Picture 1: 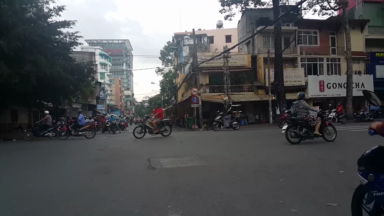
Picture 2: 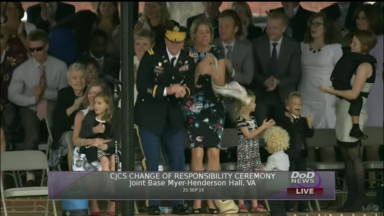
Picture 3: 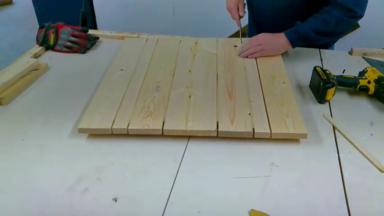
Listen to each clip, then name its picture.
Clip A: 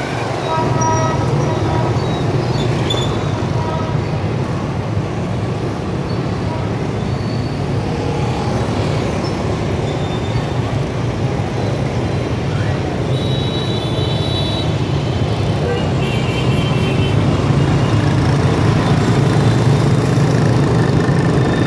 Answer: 1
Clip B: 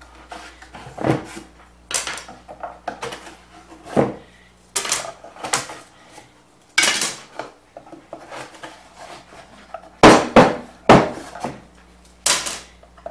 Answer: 3